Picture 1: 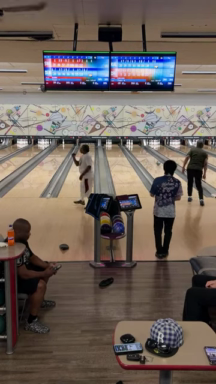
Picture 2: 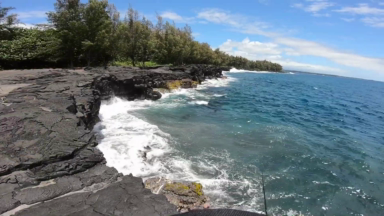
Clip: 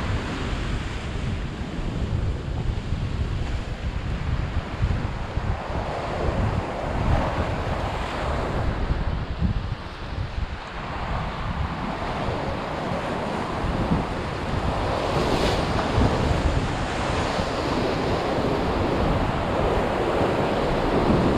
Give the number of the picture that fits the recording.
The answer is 2